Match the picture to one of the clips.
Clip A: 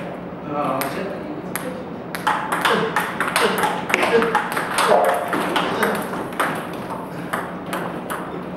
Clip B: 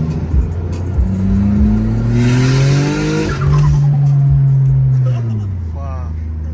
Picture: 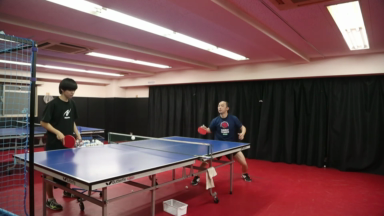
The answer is A